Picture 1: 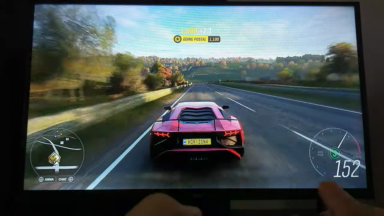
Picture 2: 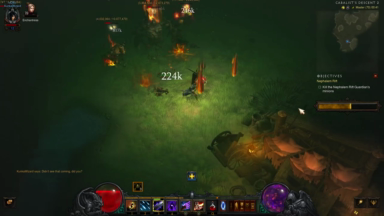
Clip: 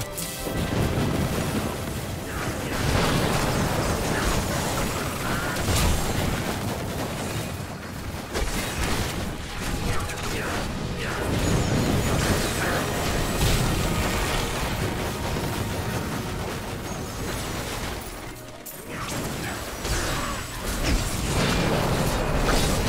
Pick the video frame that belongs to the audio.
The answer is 2